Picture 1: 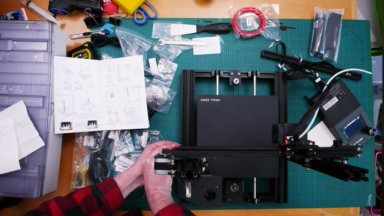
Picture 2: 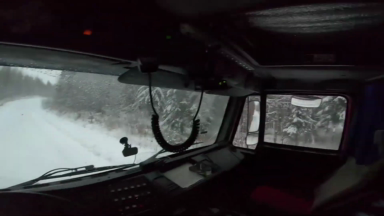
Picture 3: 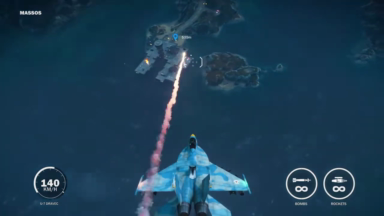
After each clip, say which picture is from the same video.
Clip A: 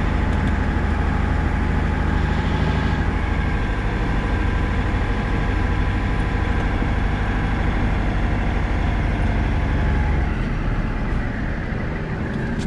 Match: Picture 2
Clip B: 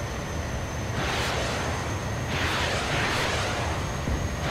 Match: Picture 3